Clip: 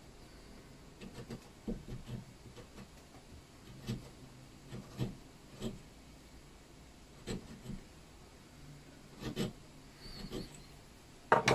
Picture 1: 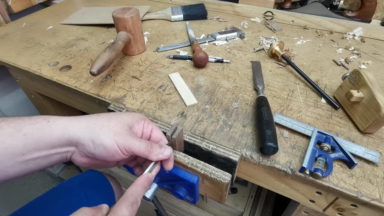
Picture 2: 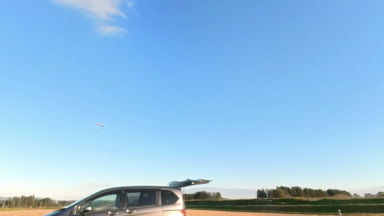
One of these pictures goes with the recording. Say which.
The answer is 1